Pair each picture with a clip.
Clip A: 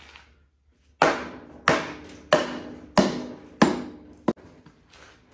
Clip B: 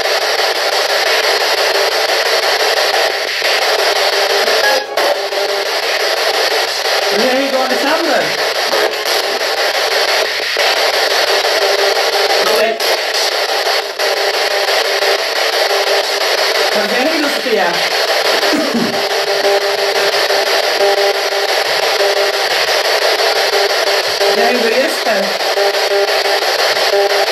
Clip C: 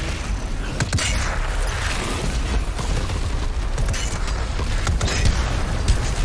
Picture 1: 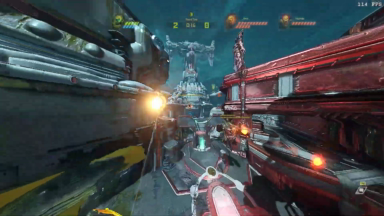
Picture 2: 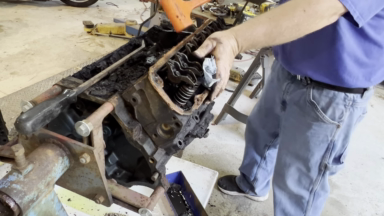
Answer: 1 C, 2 A